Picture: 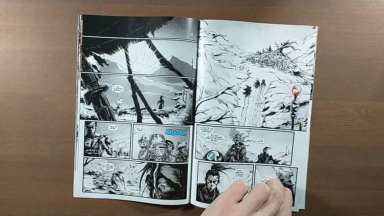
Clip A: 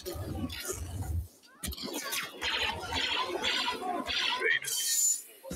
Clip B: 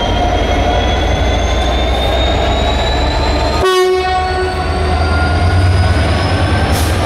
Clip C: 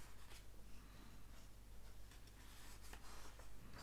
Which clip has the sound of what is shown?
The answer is C